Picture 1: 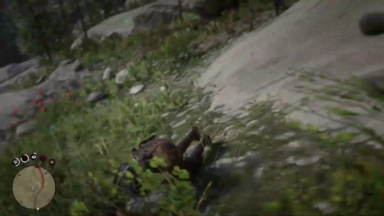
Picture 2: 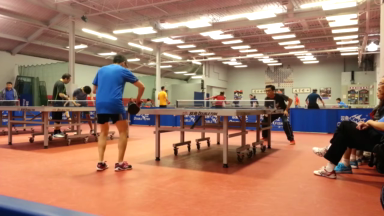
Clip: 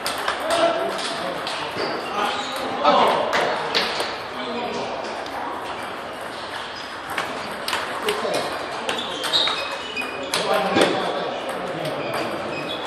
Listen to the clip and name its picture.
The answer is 2